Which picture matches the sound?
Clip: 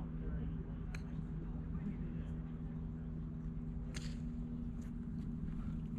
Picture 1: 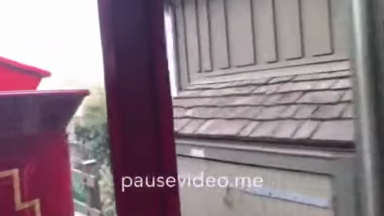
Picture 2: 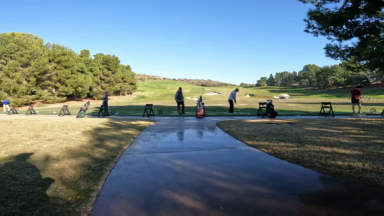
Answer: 2